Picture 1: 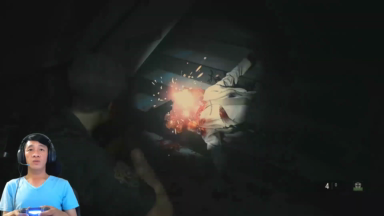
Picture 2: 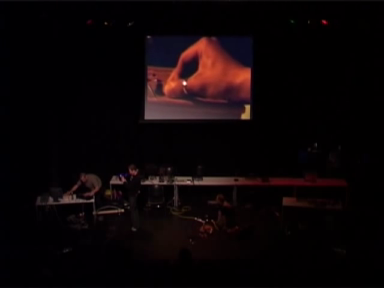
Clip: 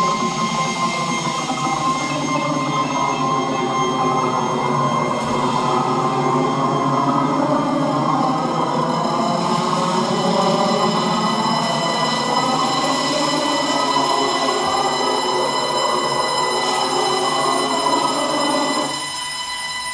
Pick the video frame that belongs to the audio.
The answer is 2